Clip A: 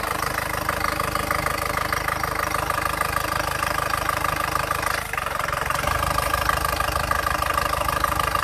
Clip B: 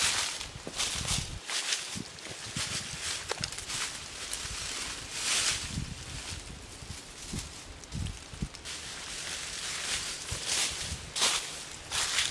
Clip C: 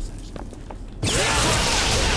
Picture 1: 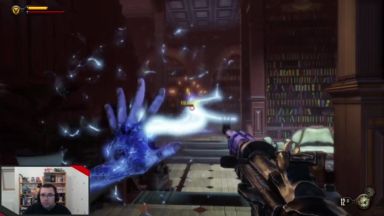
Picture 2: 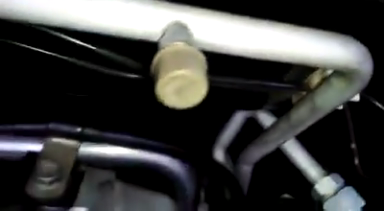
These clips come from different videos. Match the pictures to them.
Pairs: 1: C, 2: A